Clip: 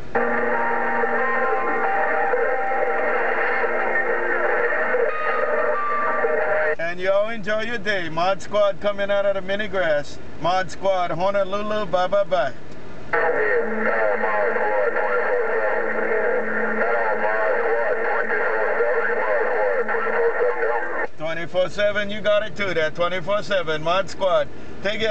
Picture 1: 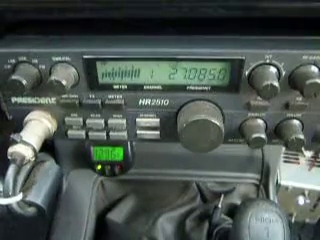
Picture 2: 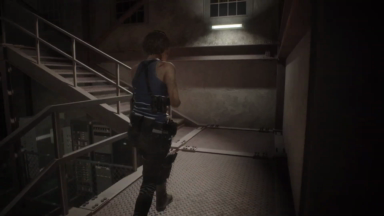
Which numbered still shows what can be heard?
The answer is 1